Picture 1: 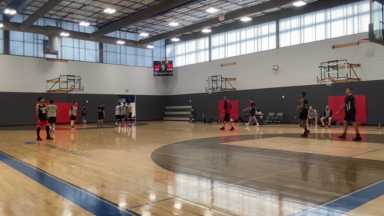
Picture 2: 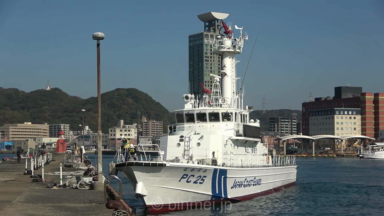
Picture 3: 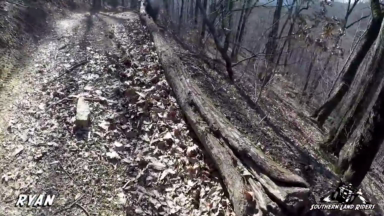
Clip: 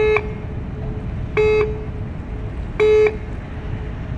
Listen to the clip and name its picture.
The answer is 2